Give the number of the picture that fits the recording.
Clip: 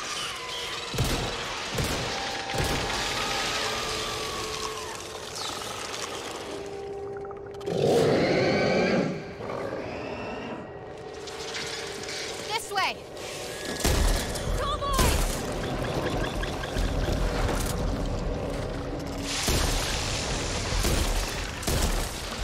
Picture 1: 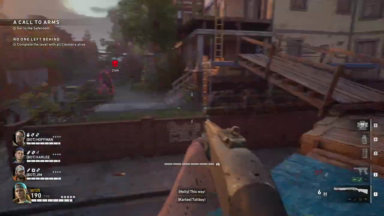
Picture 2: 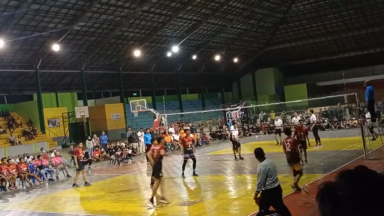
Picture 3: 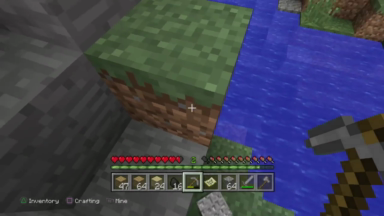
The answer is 1